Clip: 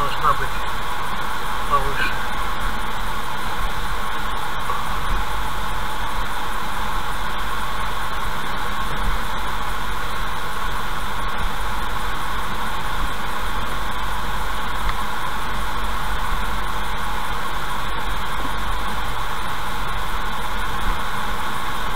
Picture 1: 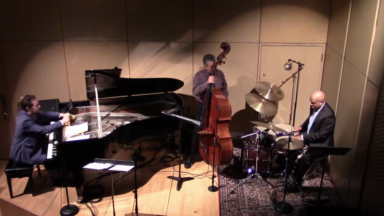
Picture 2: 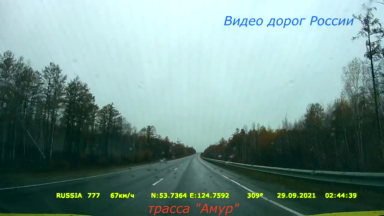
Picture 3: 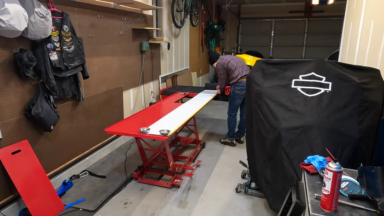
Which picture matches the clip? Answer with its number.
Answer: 2